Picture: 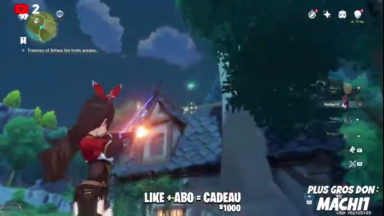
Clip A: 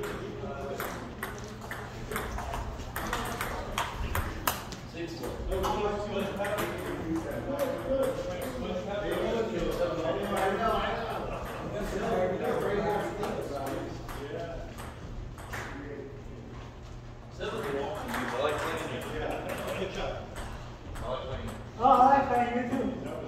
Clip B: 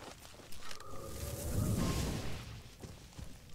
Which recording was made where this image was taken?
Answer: B